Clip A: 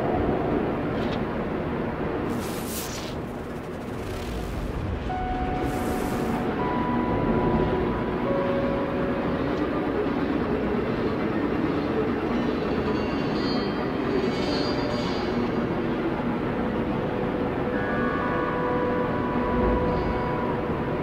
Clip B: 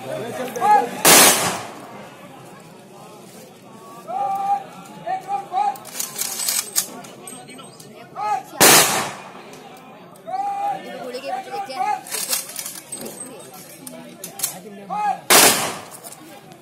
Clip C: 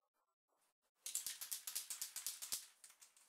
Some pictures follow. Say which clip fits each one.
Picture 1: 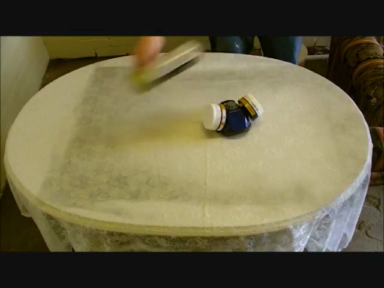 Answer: C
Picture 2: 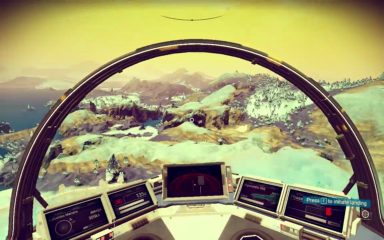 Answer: A